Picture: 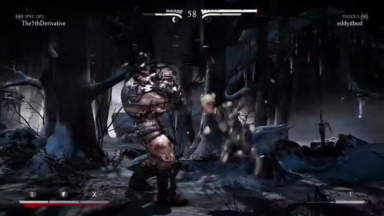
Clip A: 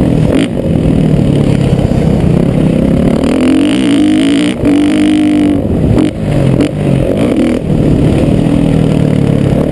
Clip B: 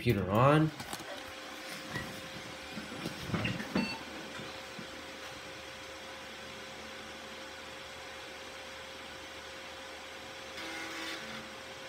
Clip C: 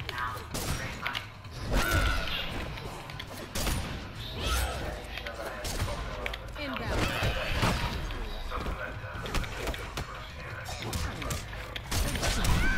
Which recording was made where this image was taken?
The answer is C